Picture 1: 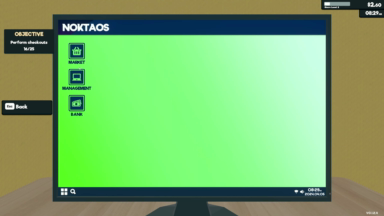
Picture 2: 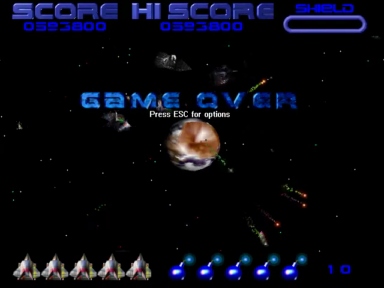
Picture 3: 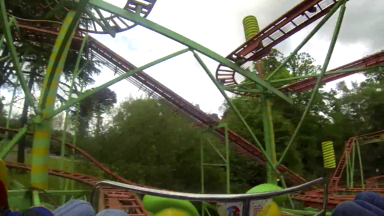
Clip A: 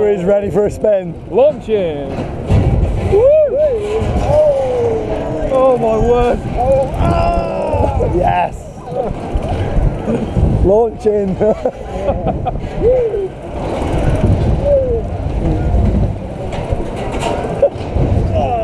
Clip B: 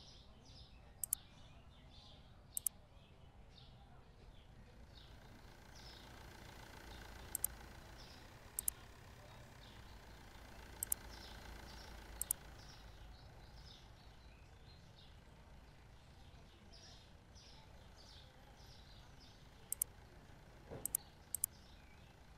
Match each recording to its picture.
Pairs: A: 3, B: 1